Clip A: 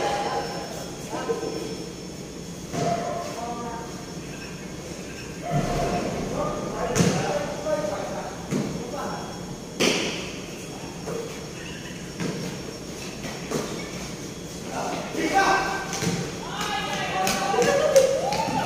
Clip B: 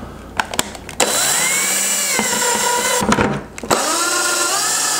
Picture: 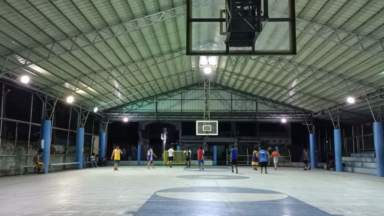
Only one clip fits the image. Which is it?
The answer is A